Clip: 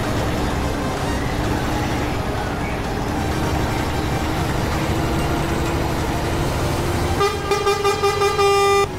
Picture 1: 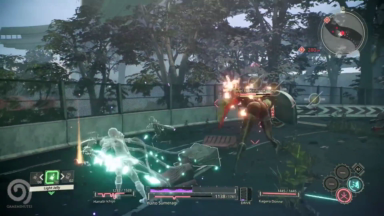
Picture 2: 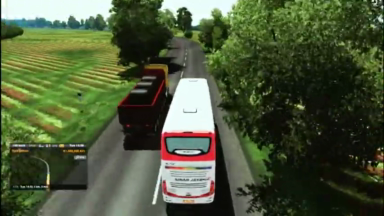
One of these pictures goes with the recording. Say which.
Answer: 2